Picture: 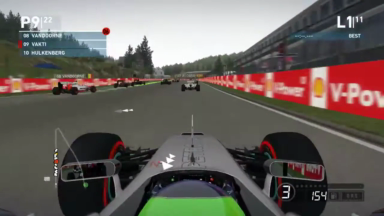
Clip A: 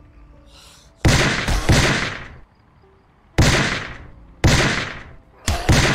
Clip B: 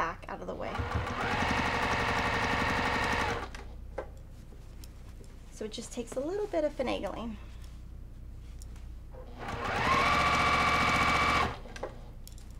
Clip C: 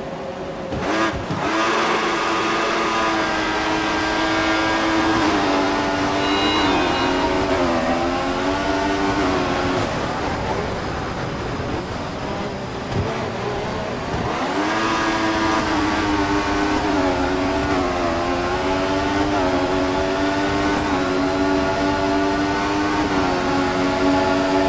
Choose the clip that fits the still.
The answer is C